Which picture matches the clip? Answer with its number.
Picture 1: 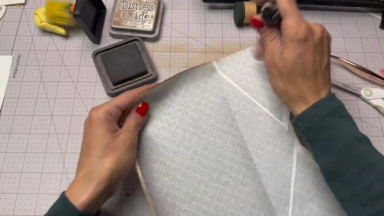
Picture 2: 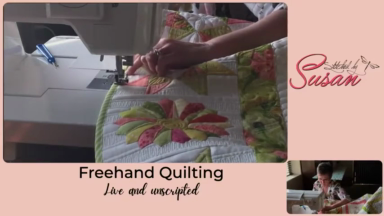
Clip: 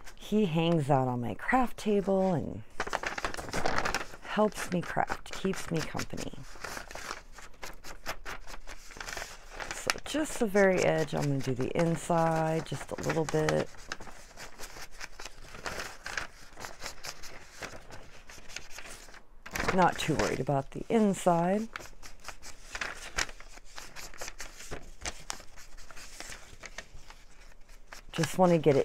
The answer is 1